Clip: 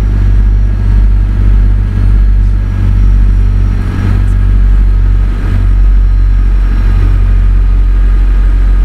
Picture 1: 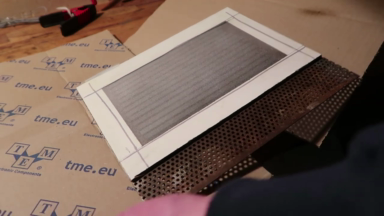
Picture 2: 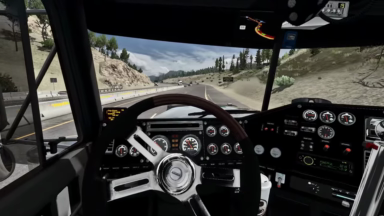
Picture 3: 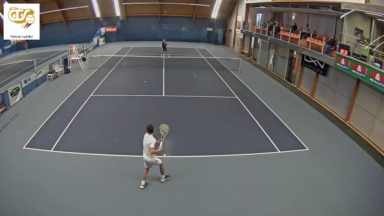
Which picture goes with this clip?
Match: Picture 2